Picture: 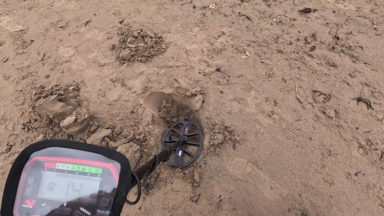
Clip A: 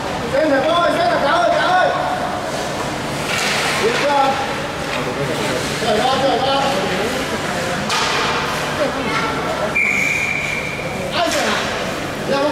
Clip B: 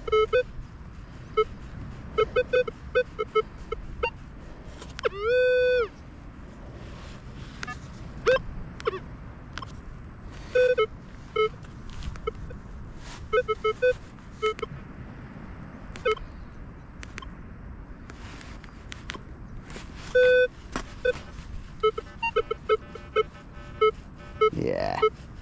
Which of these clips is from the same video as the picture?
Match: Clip B